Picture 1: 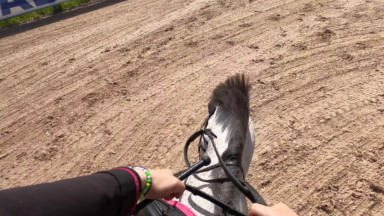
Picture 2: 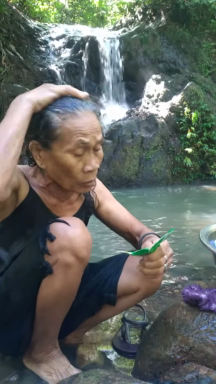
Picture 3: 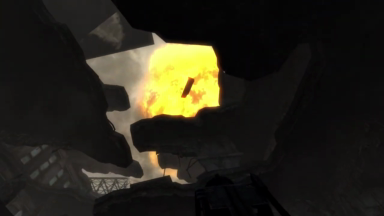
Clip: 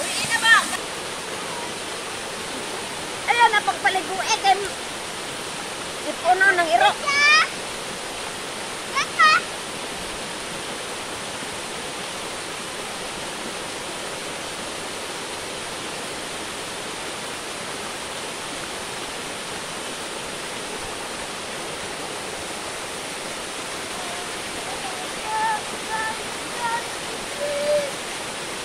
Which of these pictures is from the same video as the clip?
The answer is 2